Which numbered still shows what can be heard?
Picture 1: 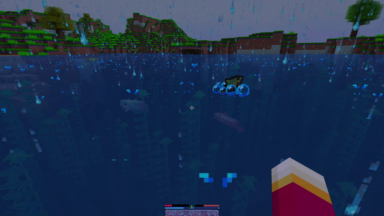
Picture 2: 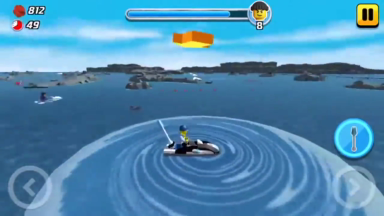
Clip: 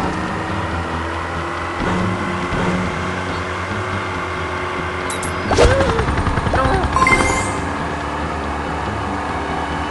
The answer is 2